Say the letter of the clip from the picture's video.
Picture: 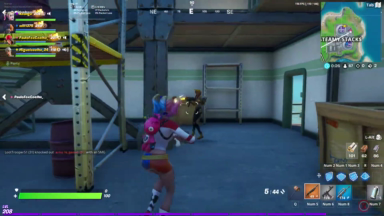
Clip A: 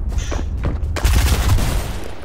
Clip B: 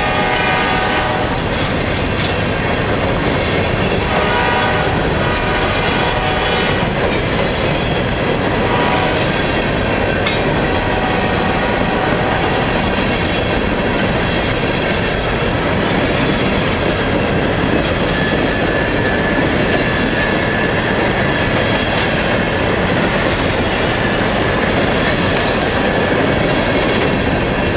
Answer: A